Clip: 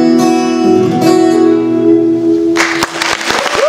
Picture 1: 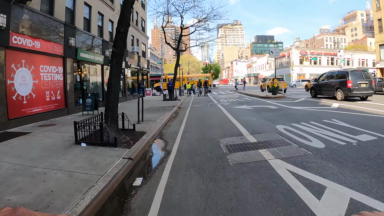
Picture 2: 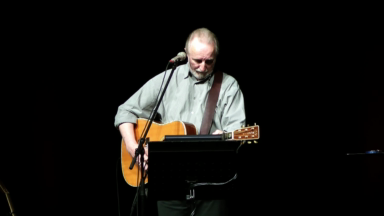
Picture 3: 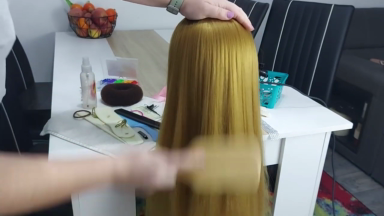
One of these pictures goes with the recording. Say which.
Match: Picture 2